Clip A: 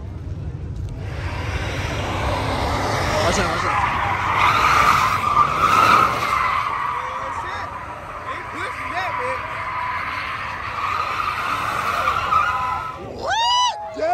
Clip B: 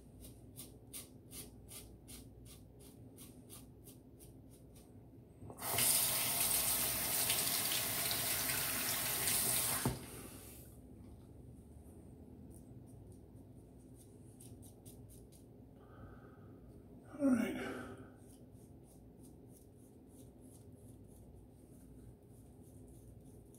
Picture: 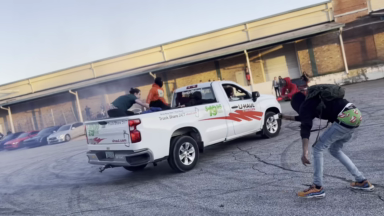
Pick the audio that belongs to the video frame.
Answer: A